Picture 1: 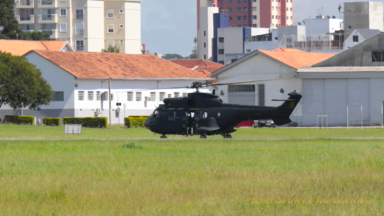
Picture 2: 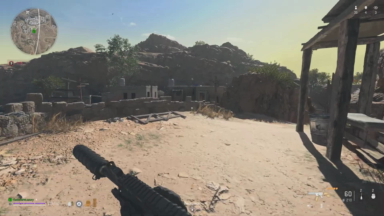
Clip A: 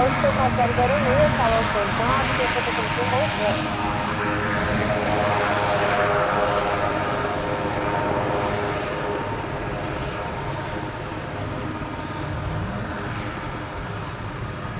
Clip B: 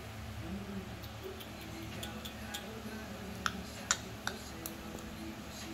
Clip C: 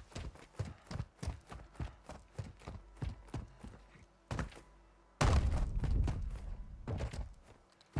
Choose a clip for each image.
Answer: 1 A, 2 C